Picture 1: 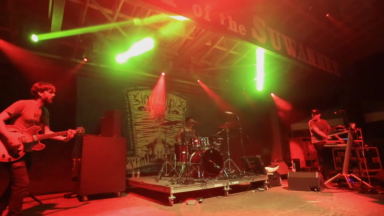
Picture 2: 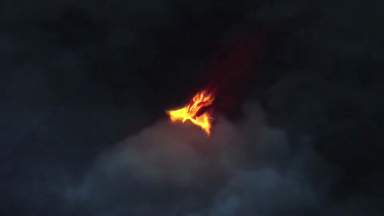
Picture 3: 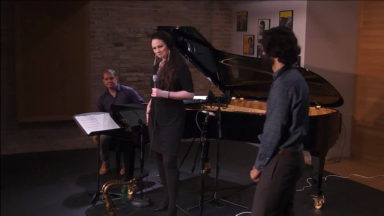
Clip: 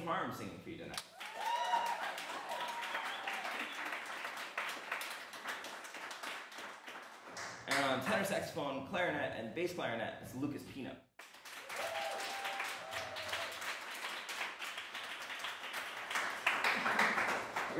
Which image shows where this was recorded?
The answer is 3